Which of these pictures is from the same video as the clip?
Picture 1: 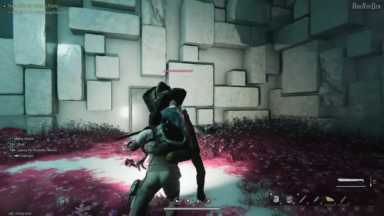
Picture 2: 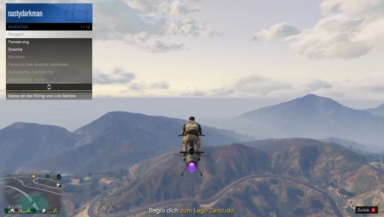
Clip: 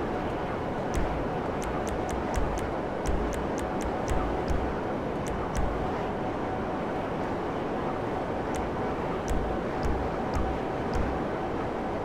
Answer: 2